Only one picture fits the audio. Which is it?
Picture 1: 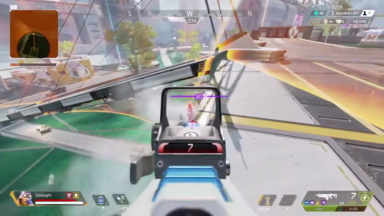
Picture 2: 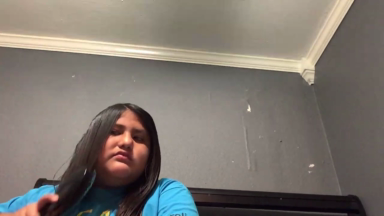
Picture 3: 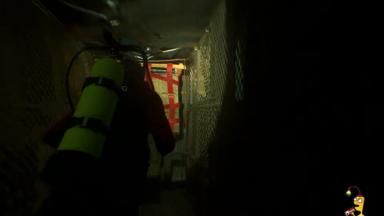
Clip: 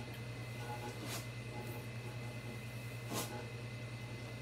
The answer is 2